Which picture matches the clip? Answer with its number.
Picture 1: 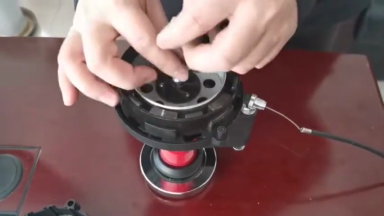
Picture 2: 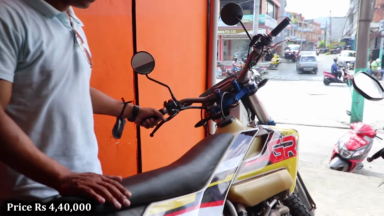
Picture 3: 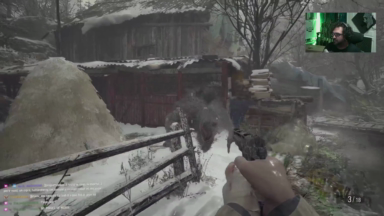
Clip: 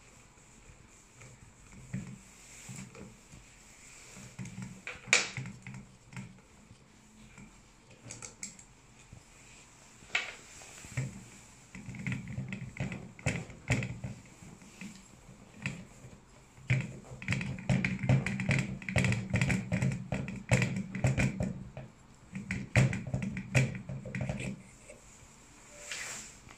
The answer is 1